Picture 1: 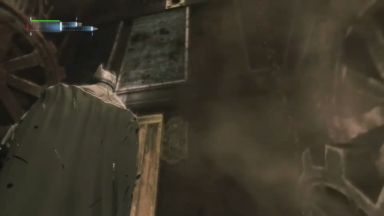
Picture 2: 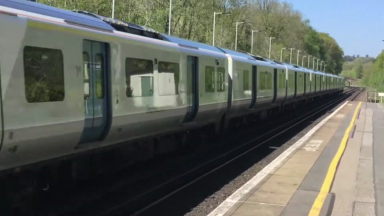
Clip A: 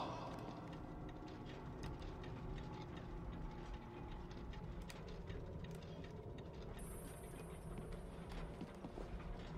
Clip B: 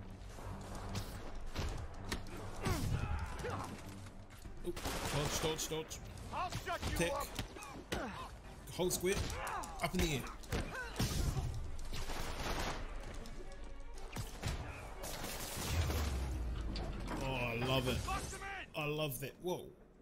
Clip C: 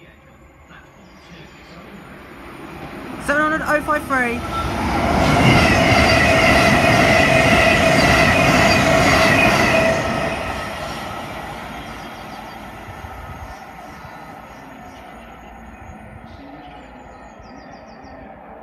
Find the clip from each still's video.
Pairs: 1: A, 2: C